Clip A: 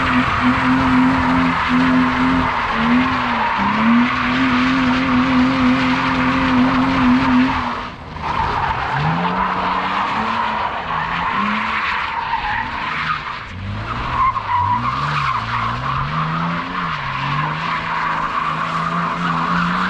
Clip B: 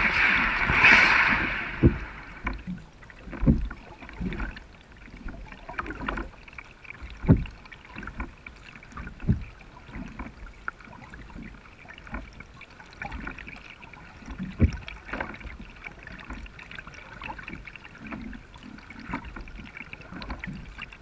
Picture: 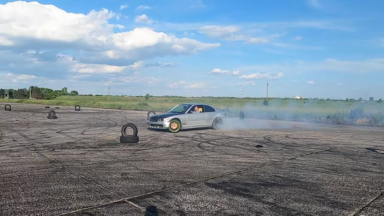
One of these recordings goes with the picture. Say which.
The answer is A